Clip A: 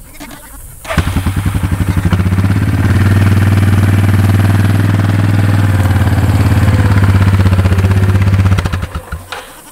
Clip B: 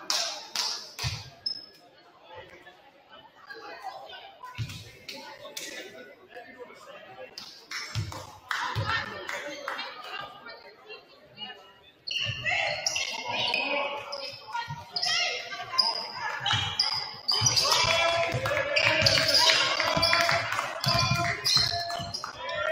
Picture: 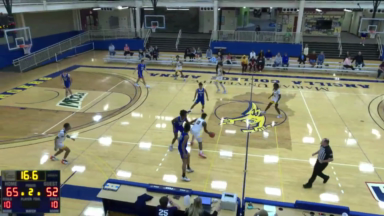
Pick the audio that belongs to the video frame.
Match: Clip B